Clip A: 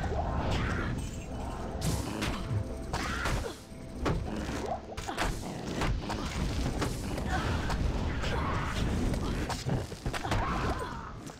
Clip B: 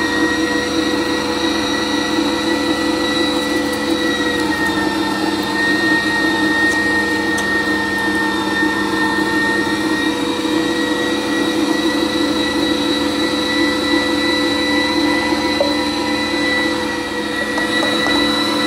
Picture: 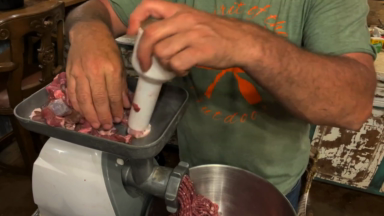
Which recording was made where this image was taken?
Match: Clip B